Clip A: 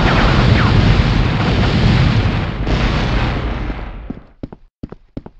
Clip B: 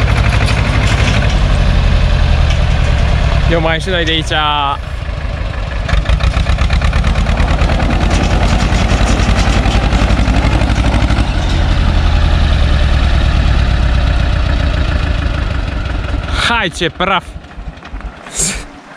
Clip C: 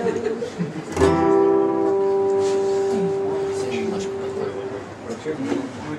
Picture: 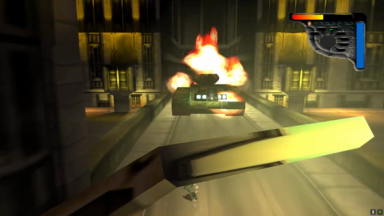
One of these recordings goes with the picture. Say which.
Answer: A